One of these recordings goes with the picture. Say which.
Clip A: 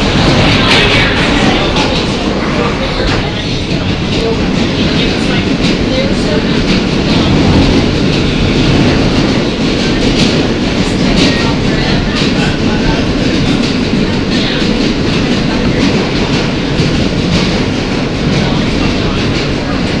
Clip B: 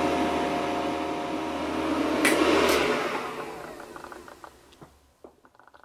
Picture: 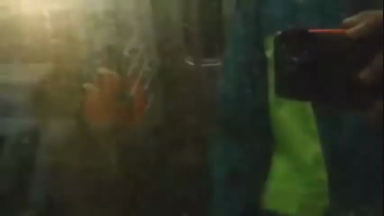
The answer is A